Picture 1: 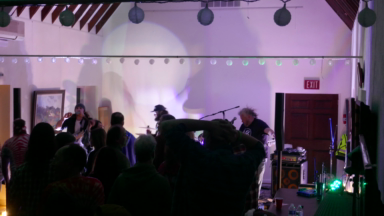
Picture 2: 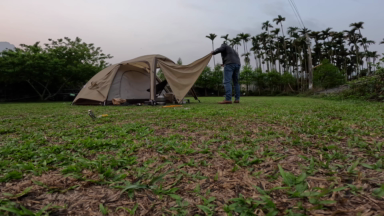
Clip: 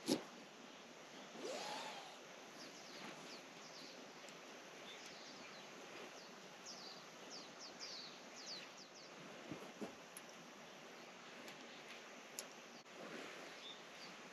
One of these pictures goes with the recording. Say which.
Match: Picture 2